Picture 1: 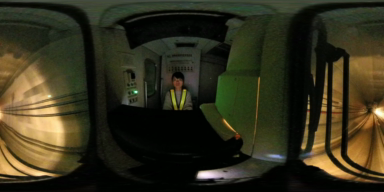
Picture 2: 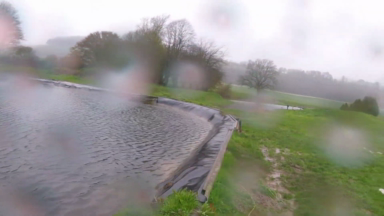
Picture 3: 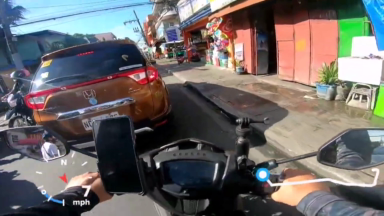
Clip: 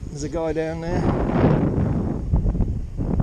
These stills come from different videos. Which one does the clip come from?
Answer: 2